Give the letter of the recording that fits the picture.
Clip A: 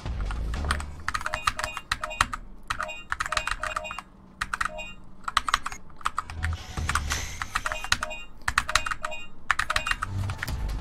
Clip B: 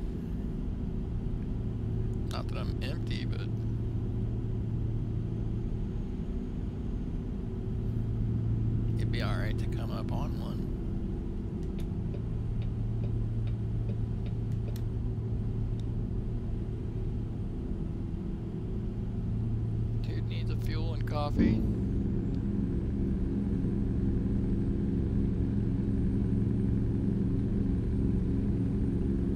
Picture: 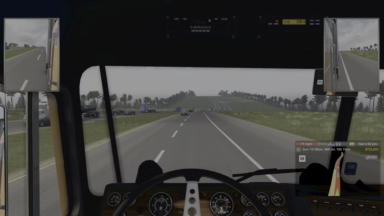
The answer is B